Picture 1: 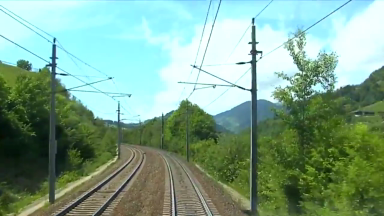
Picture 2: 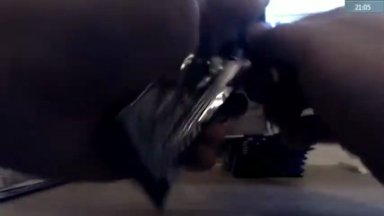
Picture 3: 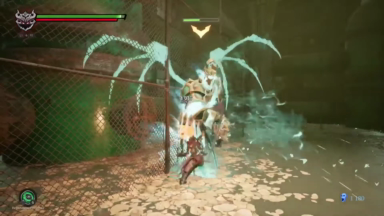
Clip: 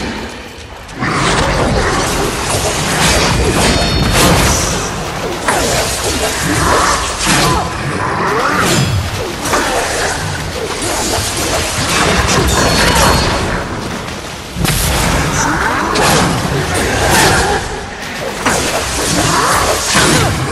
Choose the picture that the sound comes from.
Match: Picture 3